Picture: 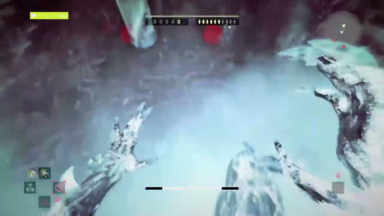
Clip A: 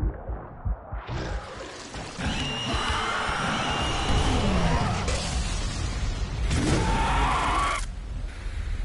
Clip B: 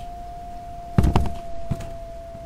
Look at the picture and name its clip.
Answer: A